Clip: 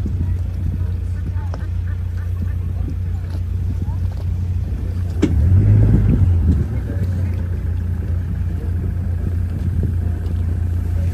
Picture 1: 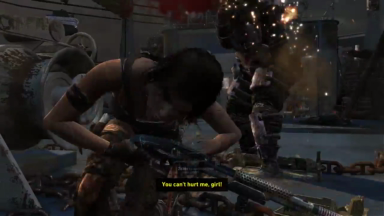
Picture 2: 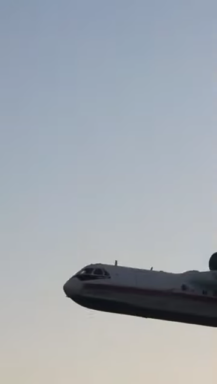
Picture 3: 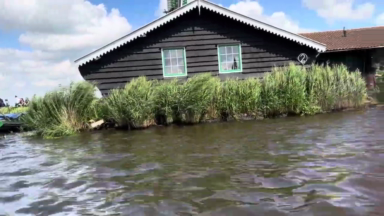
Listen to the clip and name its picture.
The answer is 3